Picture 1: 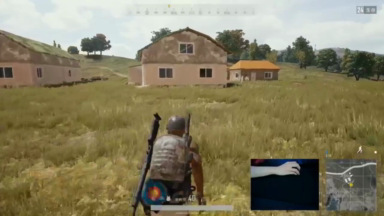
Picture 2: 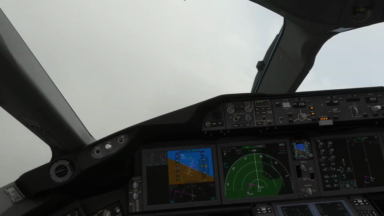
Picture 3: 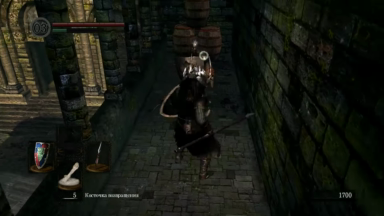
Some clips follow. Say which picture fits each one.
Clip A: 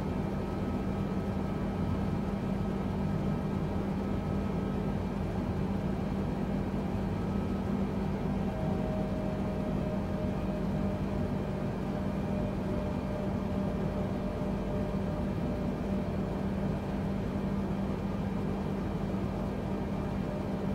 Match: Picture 2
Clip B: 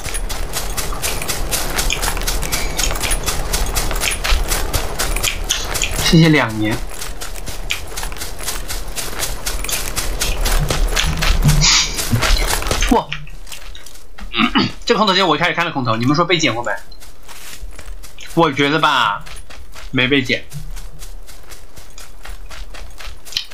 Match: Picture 1